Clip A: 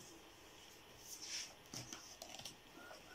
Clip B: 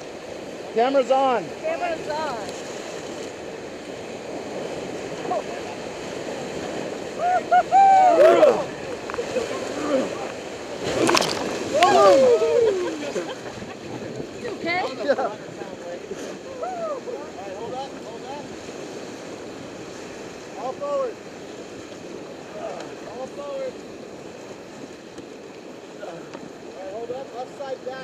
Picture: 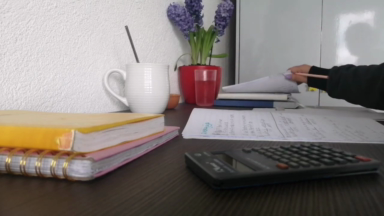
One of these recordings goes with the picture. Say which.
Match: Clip A